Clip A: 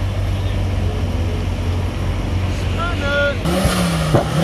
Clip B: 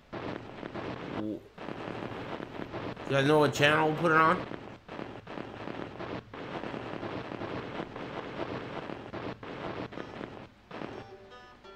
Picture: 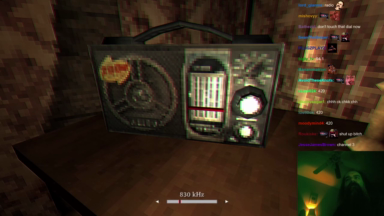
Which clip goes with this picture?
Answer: B